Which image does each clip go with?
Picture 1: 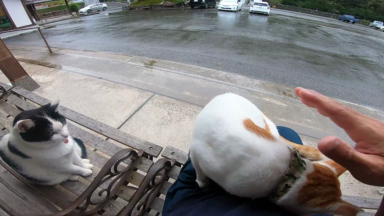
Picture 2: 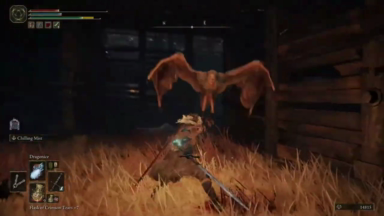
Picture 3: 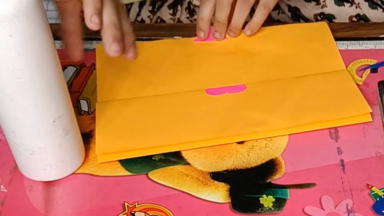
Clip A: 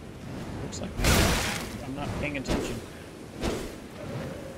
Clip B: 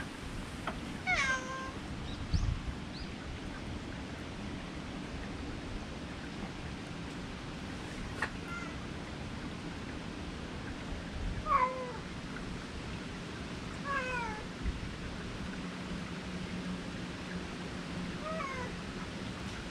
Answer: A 2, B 1